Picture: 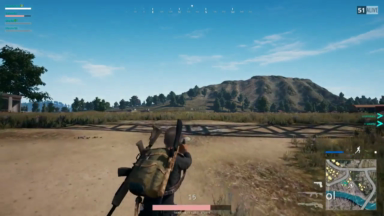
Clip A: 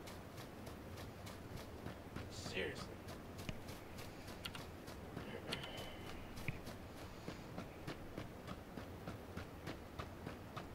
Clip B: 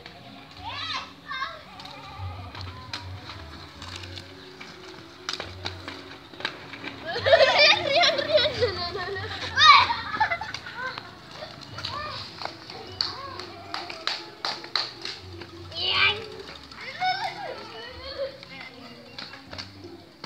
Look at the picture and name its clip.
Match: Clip A